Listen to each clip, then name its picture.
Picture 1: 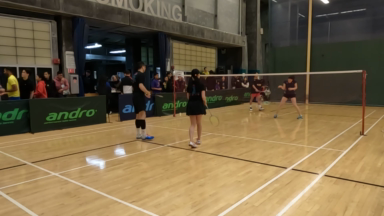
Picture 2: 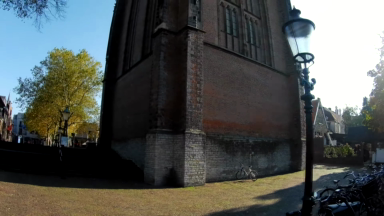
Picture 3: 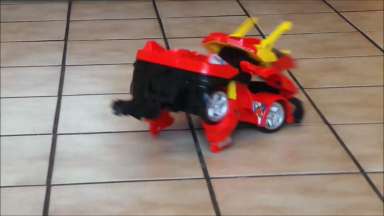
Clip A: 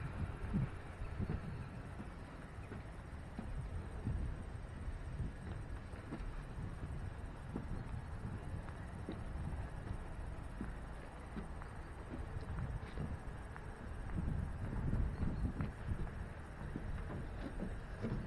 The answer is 2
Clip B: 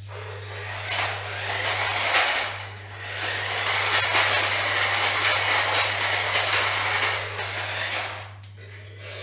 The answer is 3